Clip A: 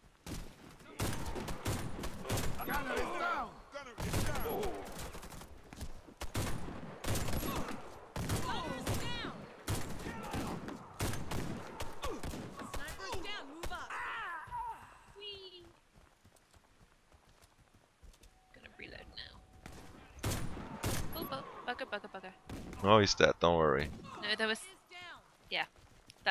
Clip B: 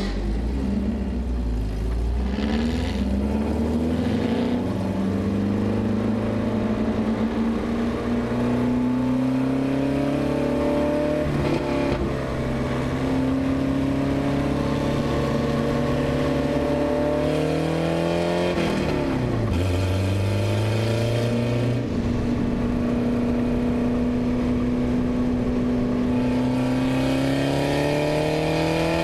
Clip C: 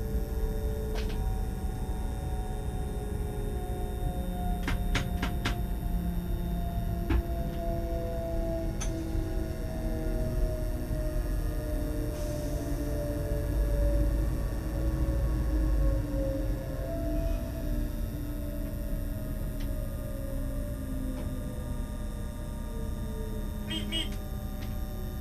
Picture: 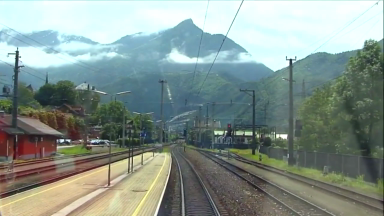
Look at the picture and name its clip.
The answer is C